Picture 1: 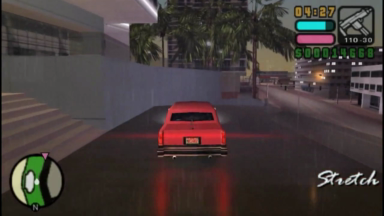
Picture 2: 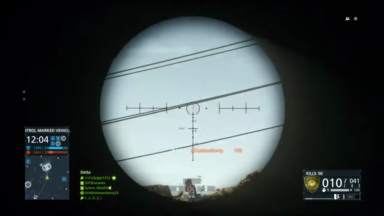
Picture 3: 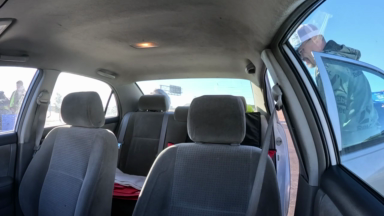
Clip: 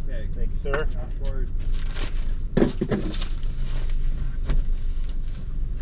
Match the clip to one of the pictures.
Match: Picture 3